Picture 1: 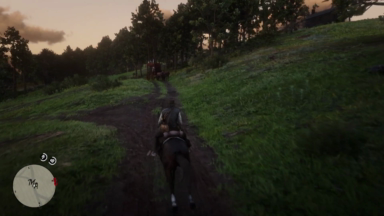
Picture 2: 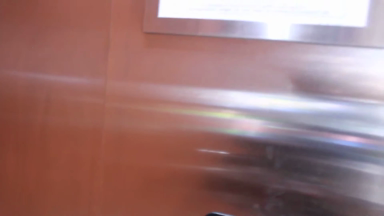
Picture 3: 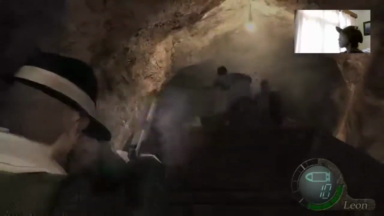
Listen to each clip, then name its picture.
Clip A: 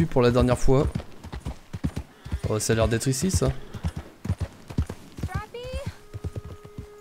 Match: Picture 1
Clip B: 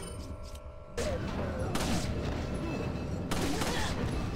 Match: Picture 3